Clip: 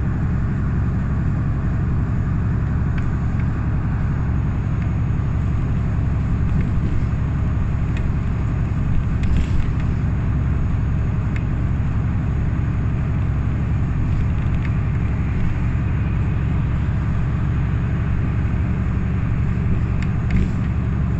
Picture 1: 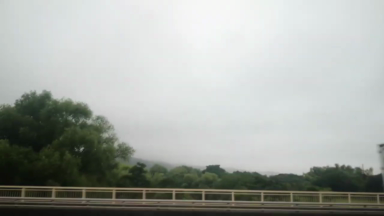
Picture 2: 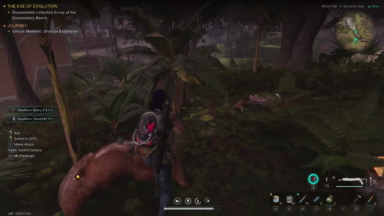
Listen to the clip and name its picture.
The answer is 1